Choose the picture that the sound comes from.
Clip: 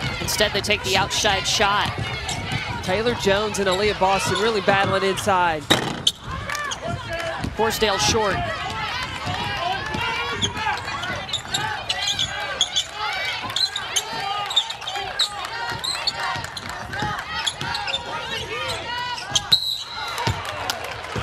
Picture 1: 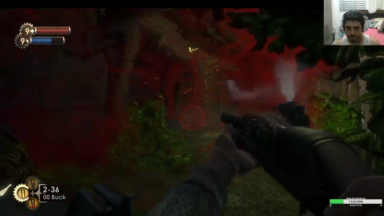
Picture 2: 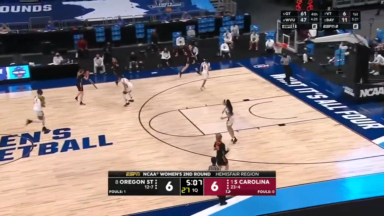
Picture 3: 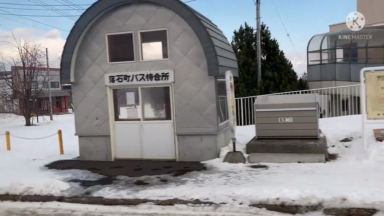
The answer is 2